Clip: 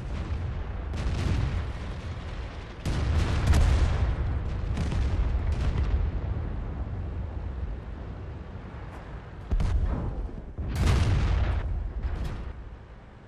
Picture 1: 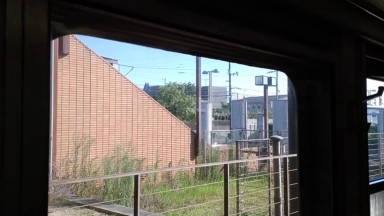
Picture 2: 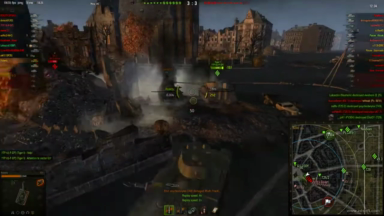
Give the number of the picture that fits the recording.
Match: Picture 2